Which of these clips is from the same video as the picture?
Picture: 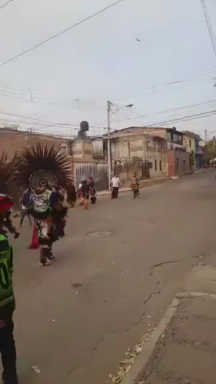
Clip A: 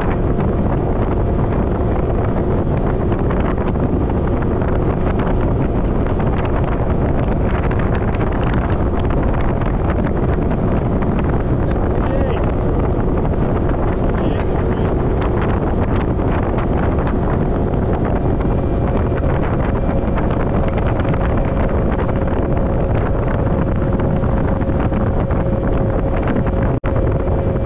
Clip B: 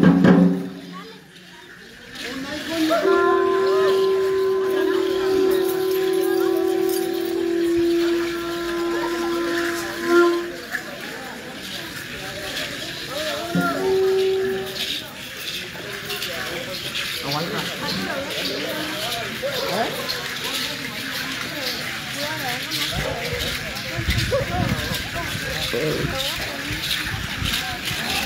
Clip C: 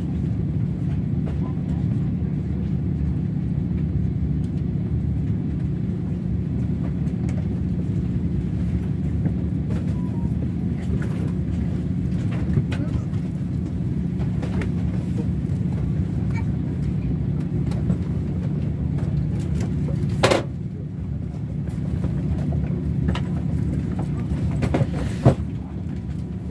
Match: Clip B